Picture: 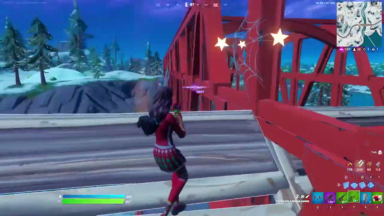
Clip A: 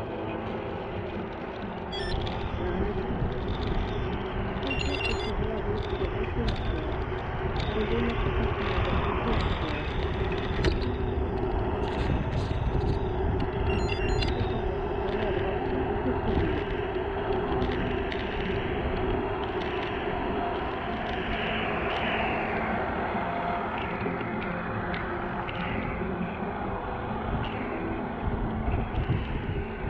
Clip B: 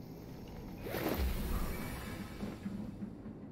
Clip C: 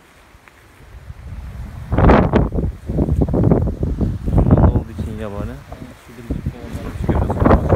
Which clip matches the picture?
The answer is B